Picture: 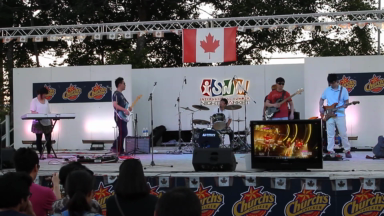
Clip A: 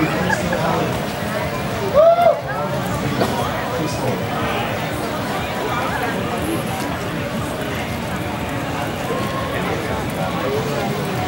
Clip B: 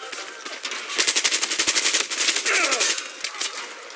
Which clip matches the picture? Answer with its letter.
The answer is A